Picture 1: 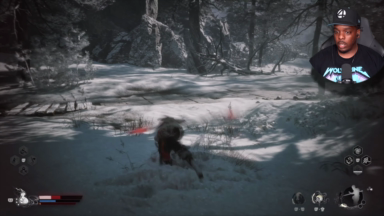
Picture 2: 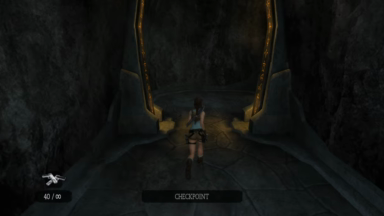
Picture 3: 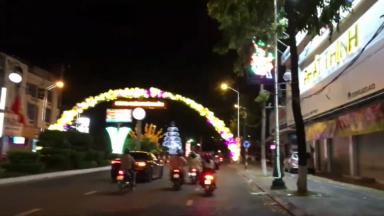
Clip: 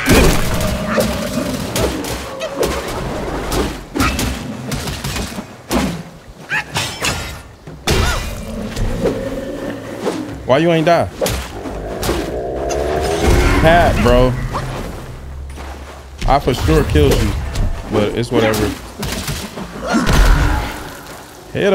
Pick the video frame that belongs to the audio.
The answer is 1